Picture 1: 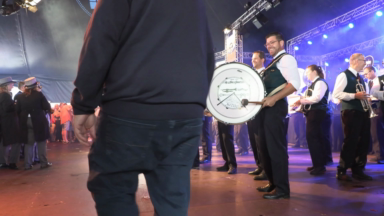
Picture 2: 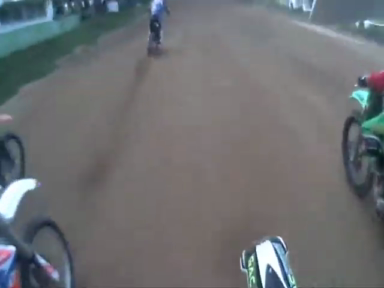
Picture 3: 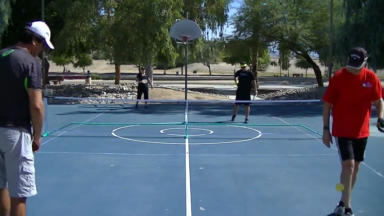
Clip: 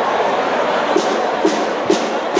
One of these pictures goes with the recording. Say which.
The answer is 1